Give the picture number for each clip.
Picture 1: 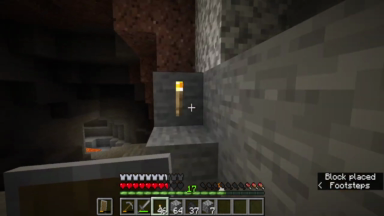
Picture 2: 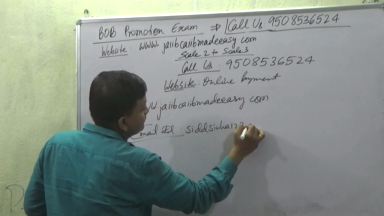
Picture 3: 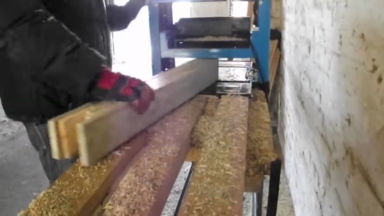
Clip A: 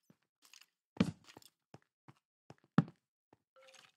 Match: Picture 1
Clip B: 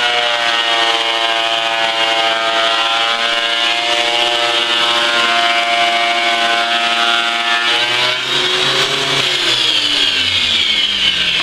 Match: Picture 3